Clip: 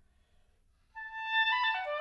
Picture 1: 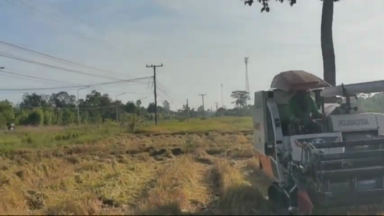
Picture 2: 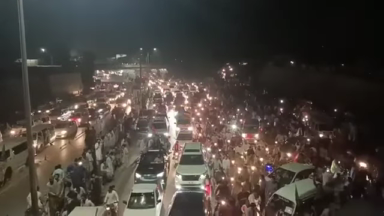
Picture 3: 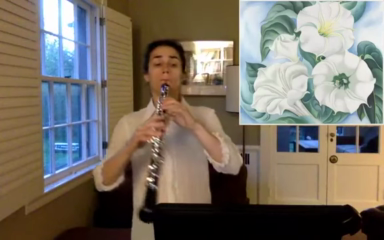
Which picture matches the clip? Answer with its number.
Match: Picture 3